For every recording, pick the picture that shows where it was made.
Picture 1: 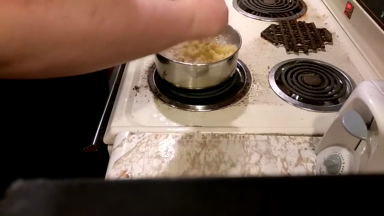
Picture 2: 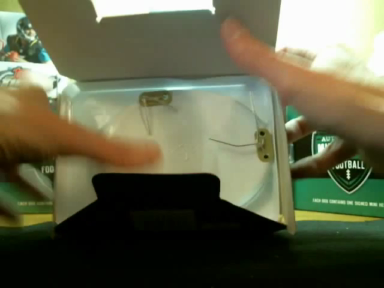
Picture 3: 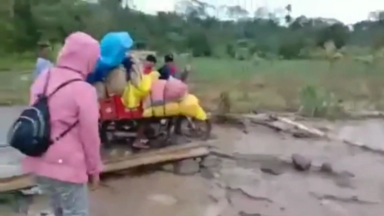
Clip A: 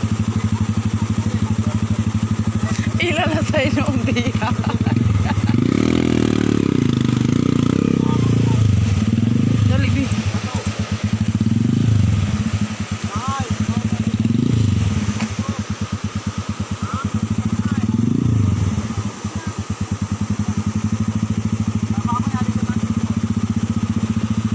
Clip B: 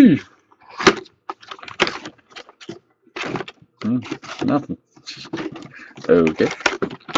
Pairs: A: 3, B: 2